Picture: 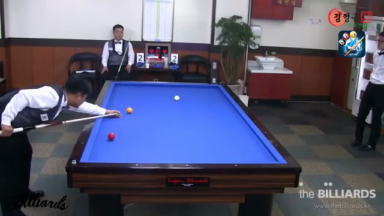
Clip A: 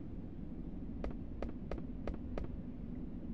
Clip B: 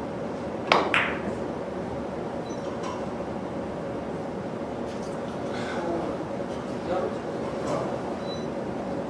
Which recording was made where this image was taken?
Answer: B